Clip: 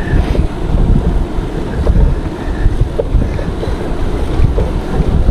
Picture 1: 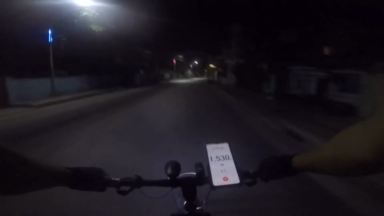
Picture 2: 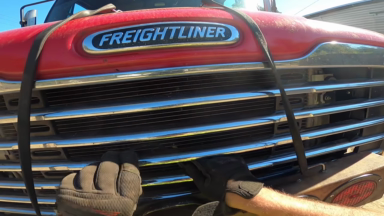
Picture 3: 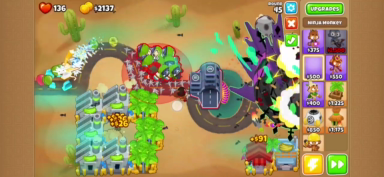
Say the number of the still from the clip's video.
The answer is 1